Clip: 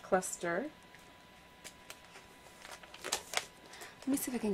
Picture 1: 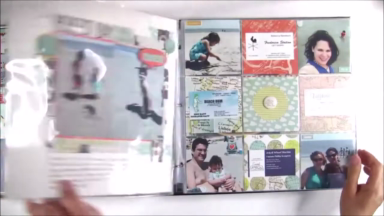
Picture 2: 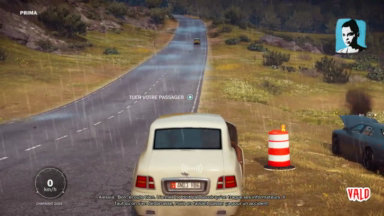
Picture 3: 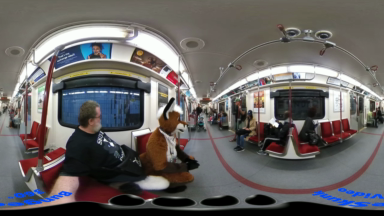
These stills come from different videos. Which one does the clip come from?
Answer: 1